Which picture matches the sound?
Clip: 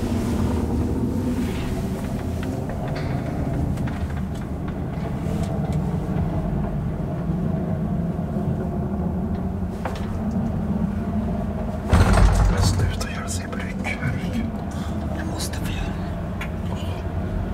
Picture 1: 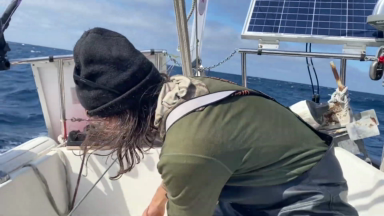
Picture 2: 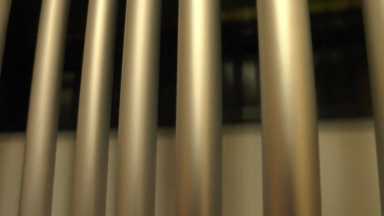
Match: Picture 2